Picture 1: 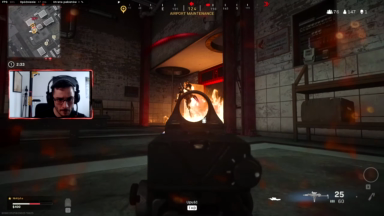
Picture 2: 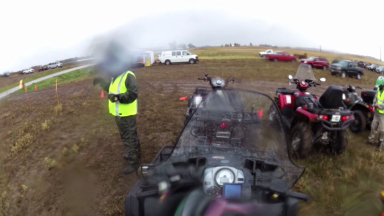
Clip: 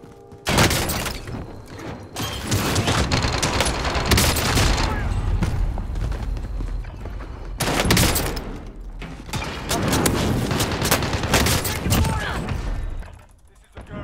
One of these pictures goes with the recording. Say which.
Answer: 1